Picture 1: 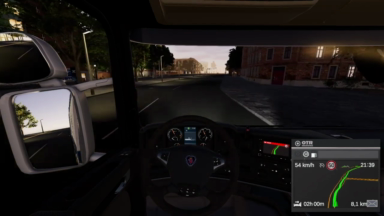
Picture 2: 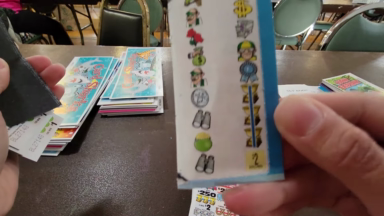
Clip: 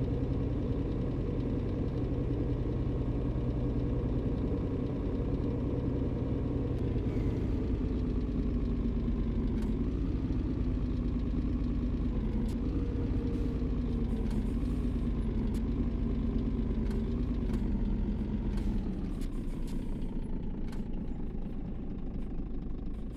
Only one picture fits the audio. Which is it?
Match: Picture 1